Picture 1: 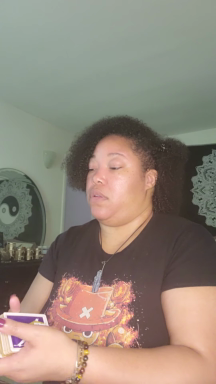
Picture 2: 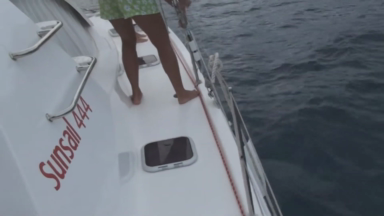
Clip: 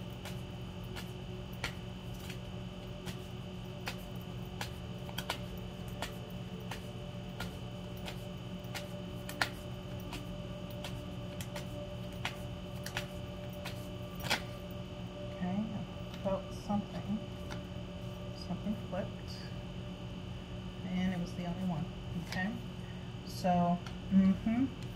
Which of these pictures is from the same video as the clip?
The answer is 1